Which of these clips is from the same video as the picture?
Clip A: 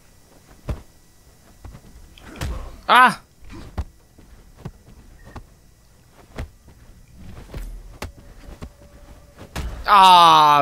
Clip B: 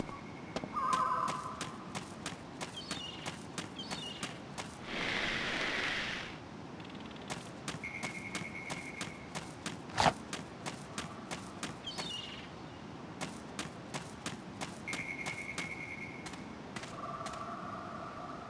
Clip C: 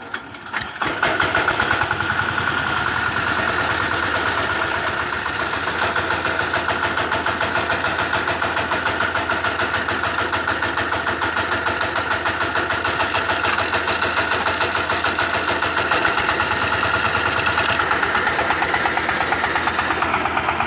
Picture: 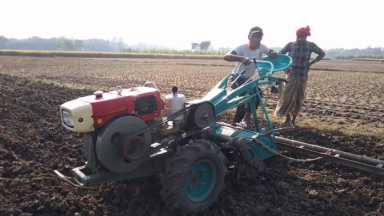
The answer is C